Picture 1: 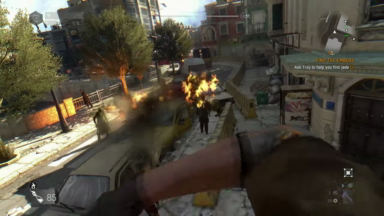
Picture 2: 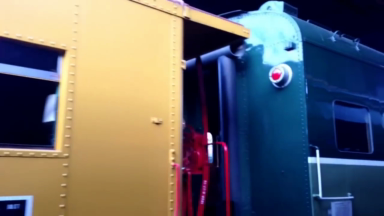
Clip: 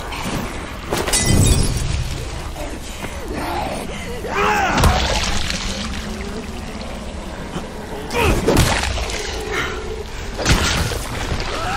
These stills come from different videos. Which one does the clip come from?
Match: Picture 1